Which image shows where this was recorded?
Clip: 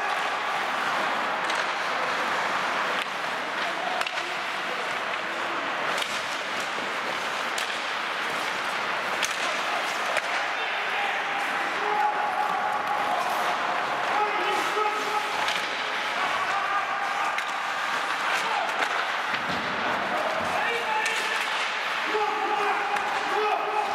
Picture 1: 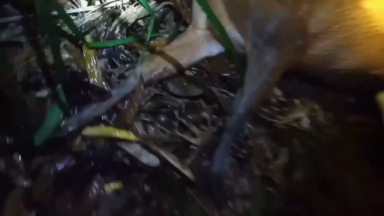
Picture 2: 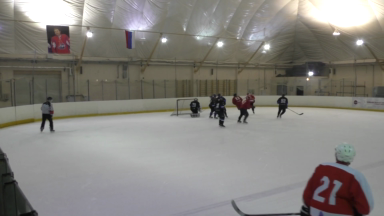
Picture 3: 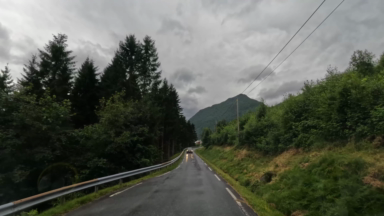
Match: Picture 2